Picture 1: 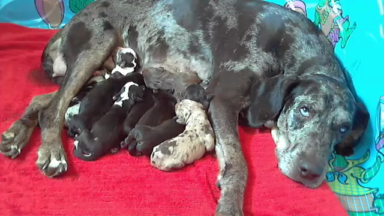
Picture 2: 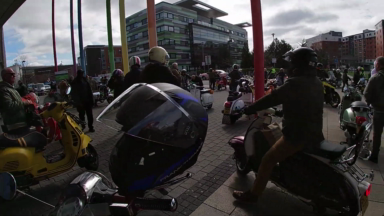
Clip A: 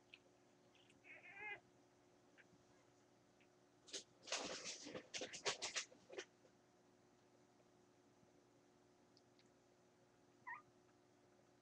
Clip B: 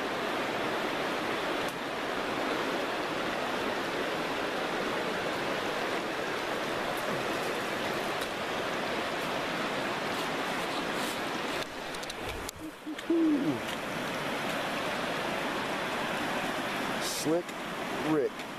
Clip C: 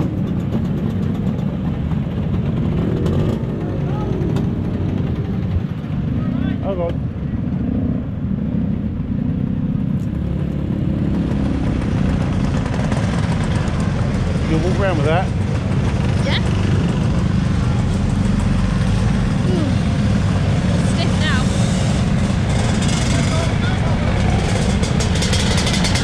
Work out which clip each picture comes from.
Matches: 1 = A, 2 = C